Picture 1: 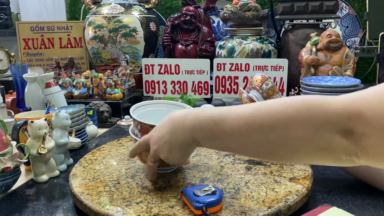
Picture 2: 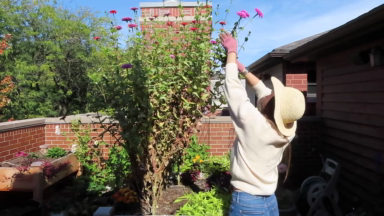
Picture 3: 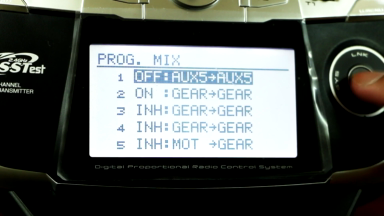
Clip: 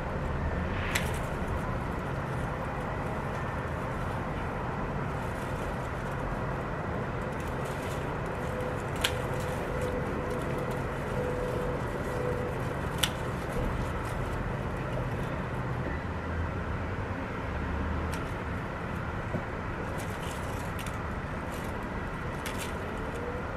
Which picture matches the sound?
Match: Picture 2